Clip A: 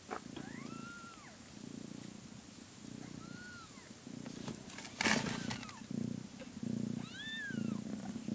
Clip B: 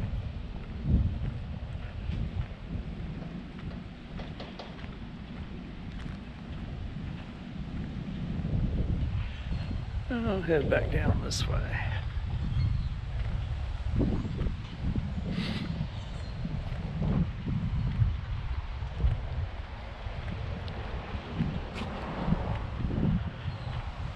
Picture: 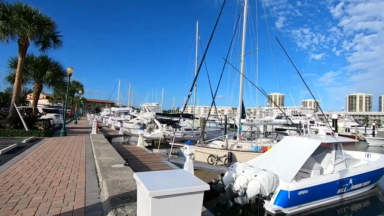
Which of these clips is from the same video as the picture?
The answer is B